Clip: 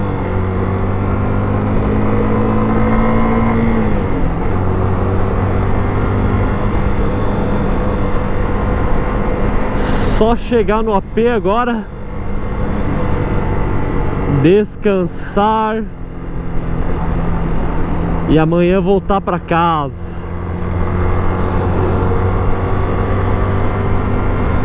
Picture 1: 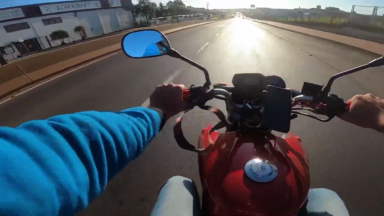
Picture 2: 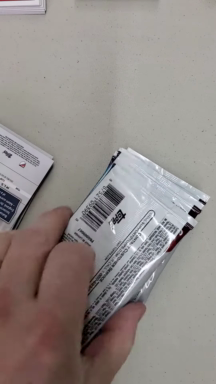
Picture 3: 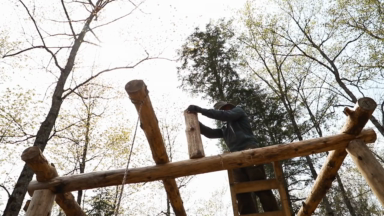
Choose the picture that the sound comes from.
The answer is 1